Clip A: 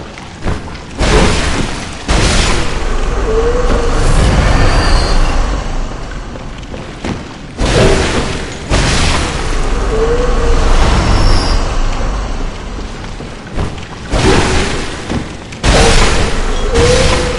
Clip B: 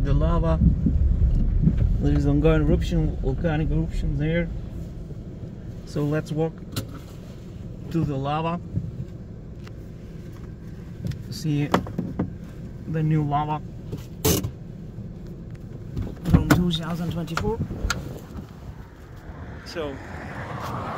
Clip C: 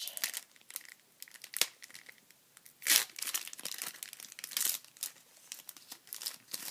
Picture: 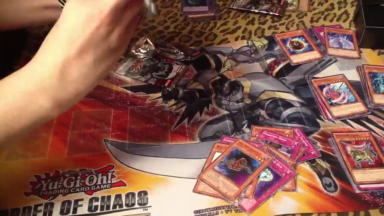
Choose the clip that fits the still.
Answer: C